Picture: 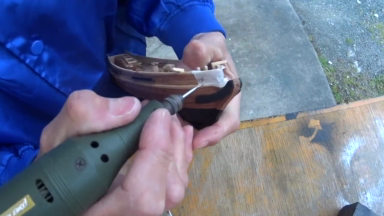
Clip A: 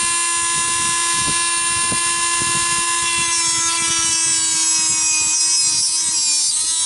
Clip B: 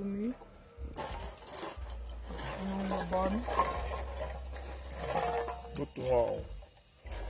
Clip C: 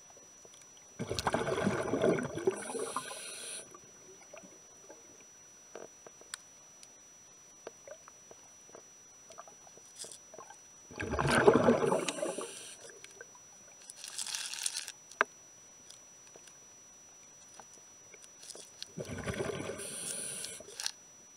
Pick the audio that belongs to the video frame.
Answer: A